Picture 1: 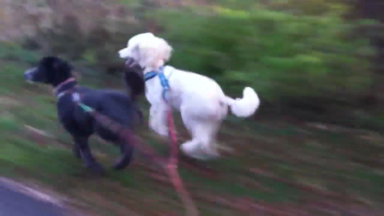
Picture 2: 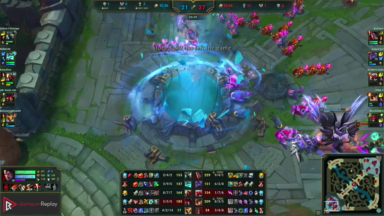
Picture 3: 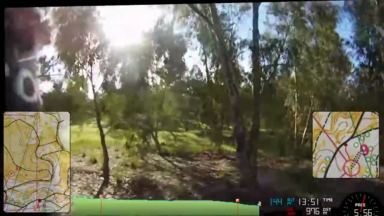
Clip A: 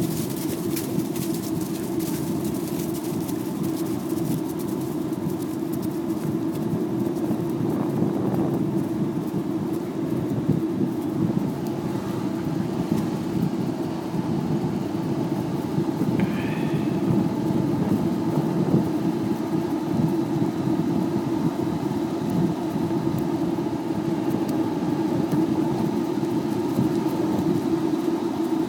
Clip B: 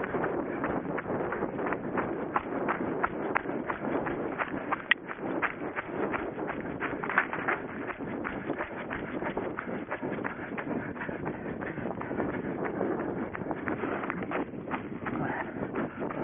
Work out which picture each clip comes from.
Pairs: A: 1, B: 3